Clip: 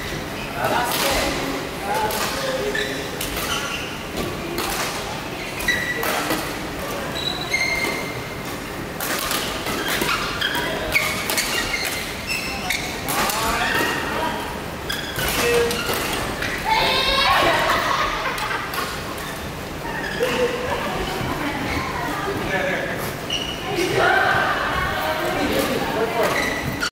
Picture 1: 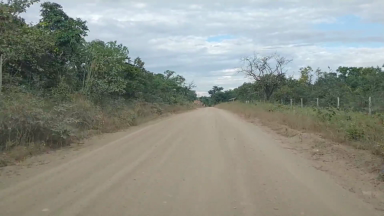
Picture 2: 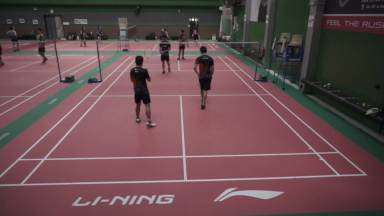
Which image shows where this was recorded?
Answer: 2